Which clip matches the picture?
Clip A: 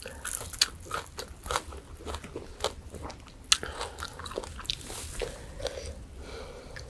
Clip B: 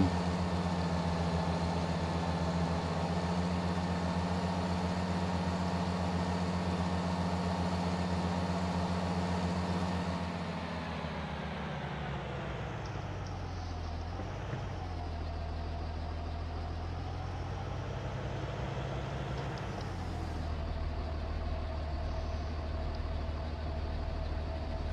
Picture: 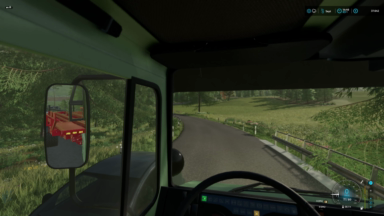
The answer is B